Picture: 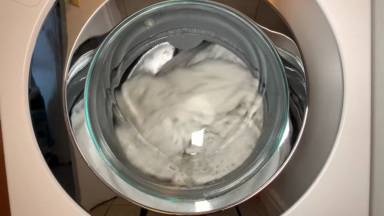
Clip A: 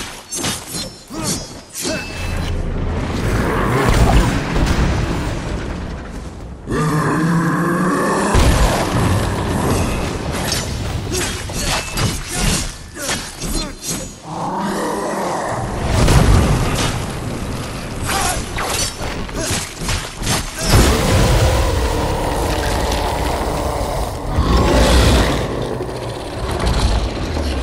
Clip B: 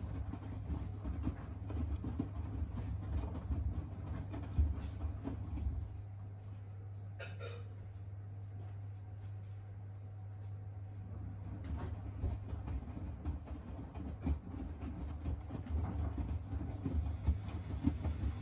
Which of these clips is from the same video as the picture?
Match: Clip B